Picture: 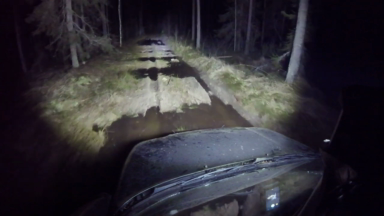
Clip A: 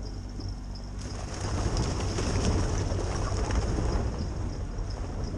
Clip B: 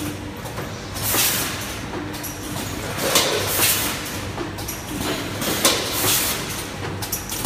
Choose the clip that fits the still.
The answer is A